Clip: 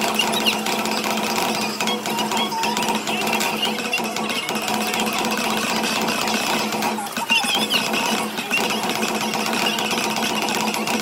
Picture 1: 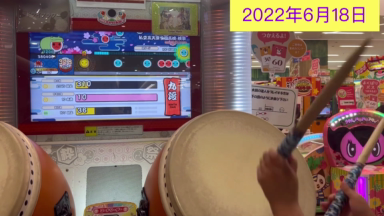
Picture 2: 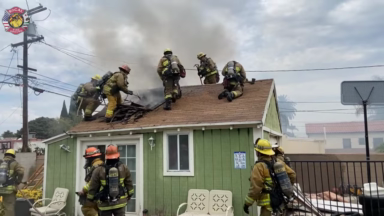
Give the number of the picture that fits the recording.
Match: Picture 1